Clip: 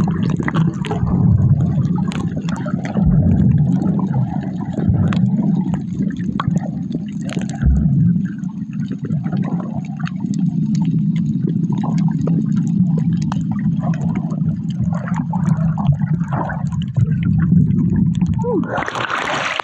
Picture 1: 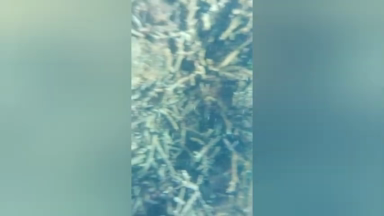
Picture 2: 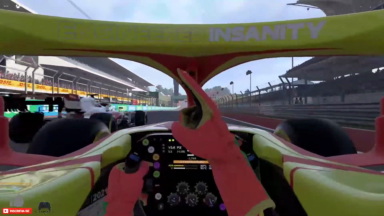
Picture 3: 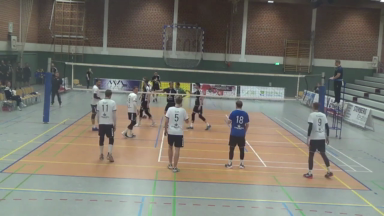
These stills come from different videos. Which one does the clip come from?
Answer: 1